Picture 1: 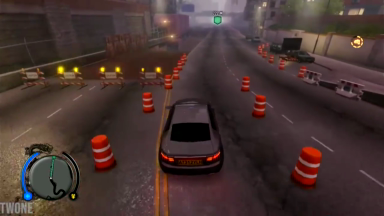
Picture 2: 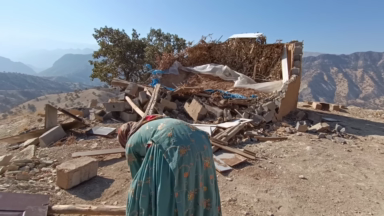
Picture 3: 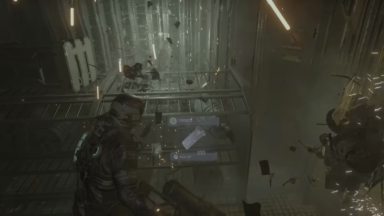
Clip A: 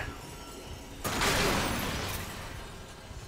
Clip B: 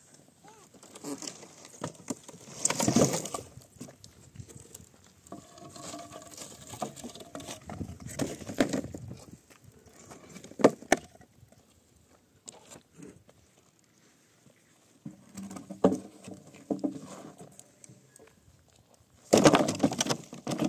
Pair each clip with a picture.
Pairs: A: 3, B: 2